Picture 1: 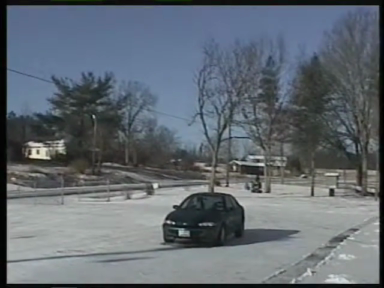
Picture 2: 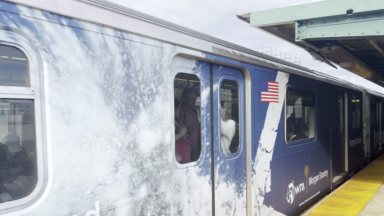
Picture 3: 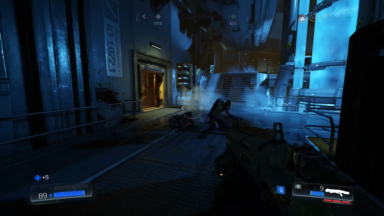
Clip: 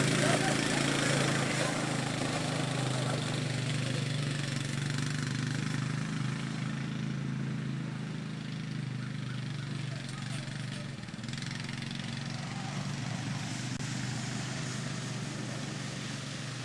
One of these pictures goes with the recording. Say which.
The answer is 1